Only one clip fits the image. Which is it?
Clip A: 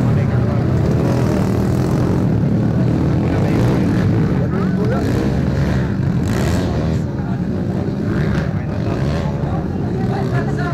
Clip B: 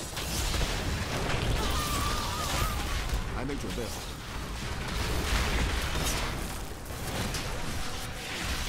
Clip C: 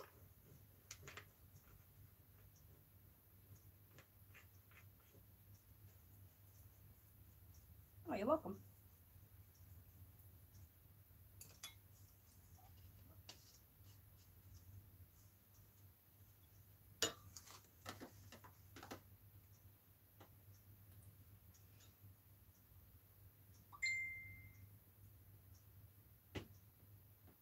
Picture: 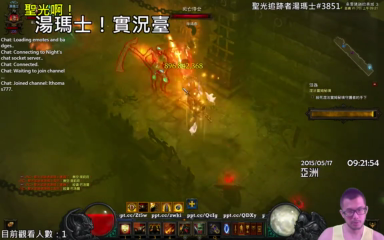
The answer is B